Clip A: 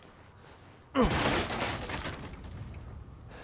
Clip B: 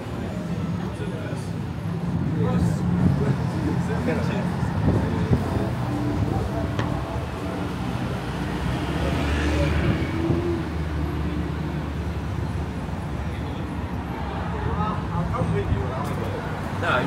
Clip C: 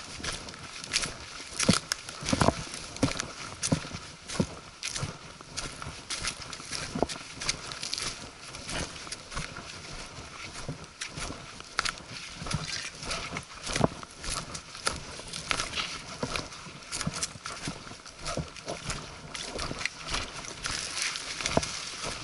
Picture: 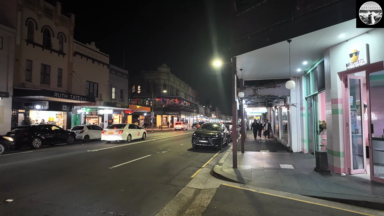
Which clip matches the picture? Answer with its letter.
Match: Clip B